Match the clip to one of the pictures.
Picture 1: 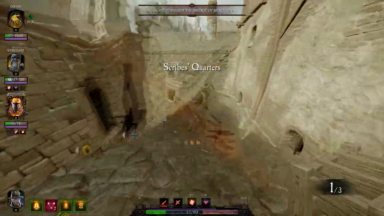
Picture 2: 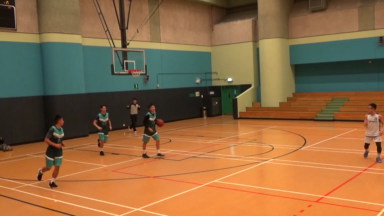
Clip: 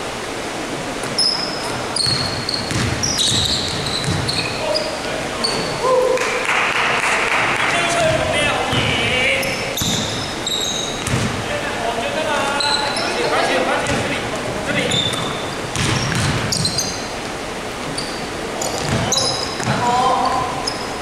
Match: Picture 2